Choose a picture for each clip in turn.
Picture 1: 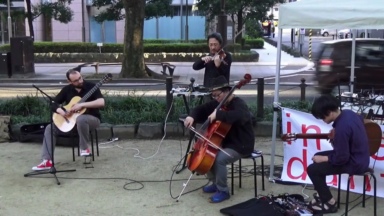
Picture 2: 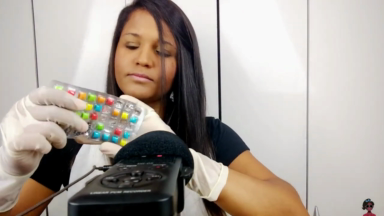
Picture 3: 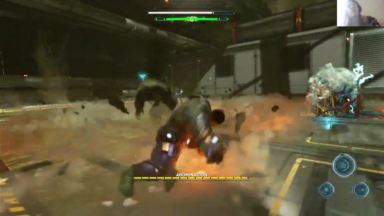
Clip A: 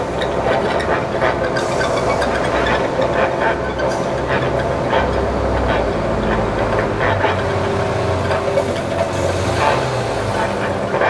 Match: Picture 1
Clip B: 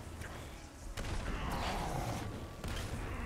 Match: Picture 3